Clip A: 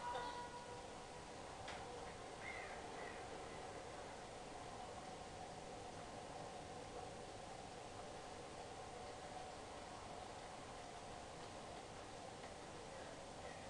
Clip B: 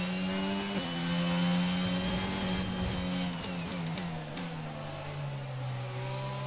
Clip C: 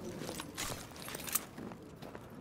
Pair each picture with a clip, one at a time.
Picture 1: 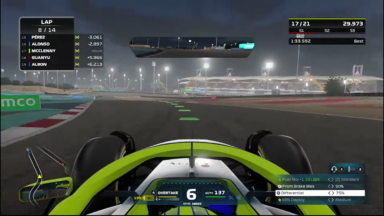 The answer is B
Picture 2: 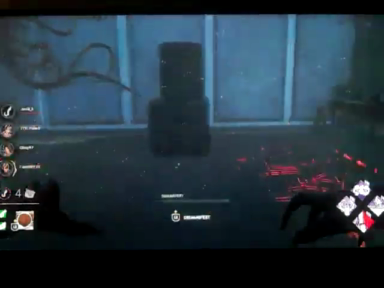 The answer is A